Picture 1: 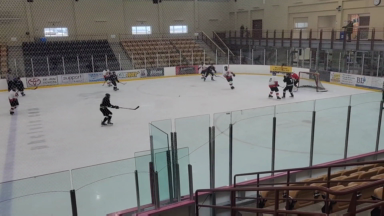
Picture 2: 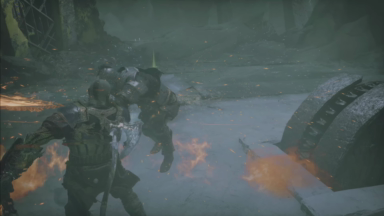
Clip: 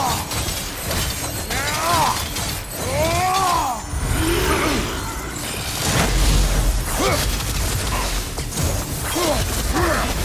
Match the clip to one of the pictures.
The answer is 2